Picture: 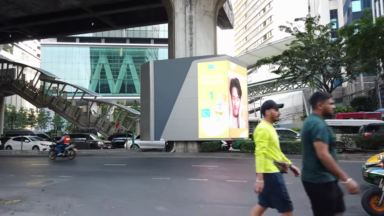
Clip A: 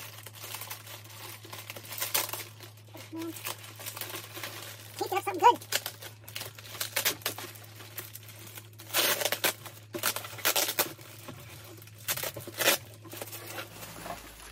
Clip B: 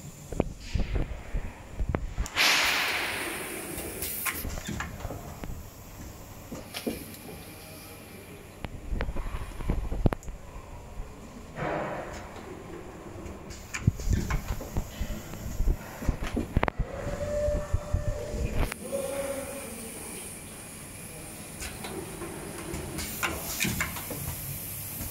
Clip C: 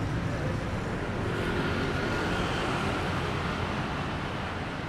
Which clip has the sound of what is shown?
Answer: C